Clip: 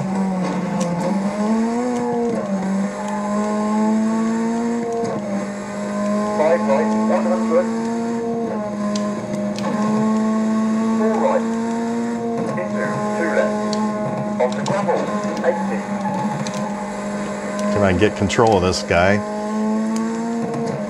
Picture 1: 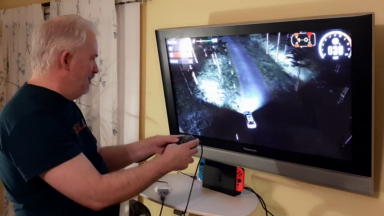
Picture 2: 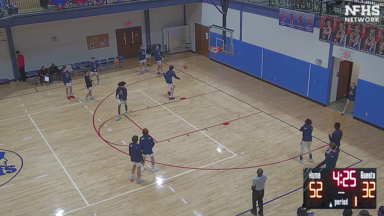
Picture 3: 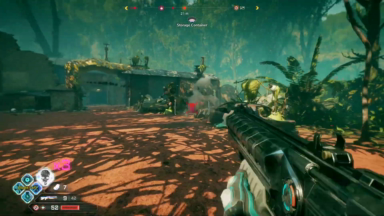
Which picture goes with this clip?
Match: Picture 1